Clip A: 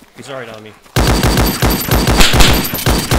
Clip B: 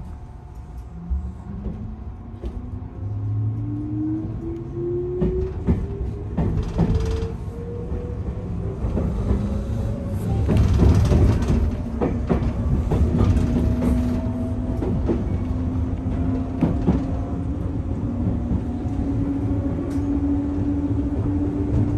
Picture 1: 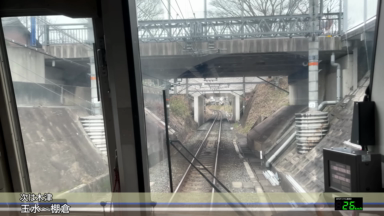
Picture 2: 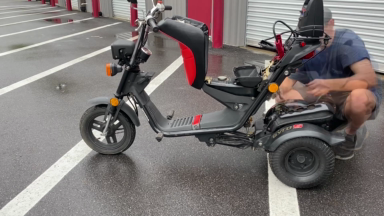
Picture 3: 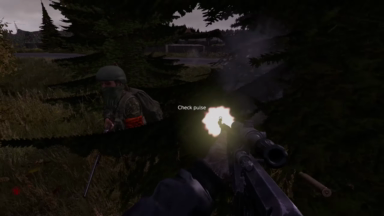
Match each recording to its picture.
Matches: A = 3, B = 1